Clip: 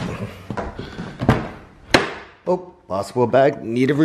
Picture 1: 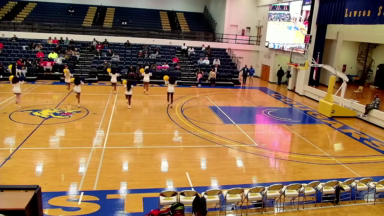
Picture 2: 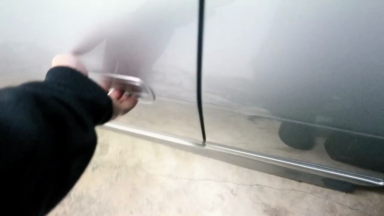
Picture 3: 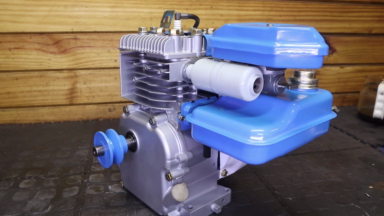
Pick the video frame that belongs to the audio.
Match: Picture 2